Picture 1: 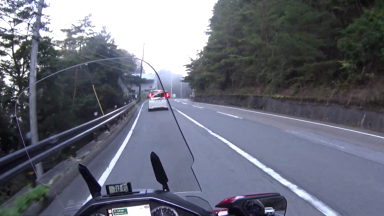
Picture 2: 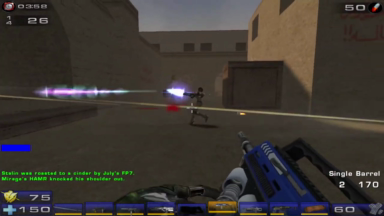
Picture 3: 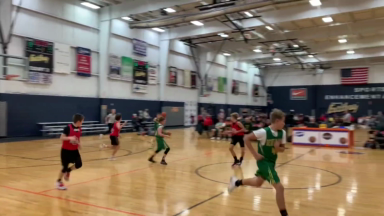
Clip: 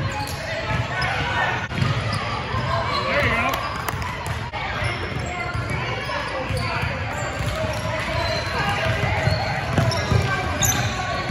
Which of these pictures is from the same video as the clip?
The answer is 3